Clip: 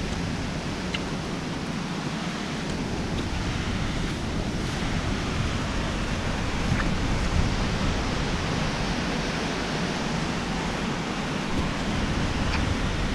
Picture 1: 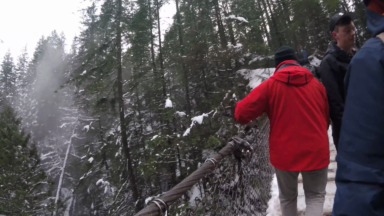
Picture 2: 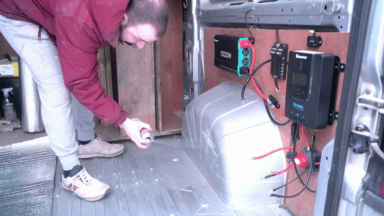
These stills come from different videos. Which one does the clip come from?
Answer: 1